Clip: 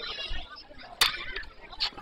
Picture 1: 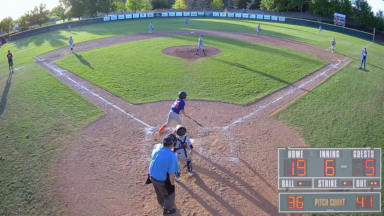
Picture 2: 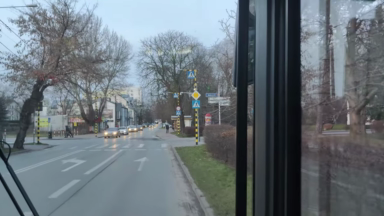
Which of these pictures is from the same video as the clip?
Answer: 1